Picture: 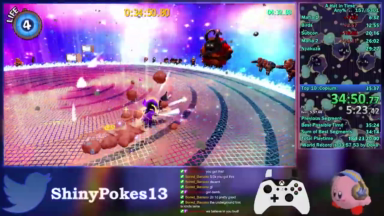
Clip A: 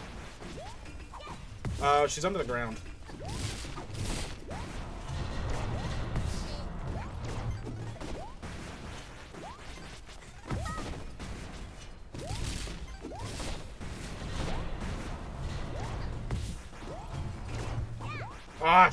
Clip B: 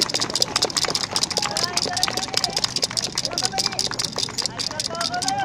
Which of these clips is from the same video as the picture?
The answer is A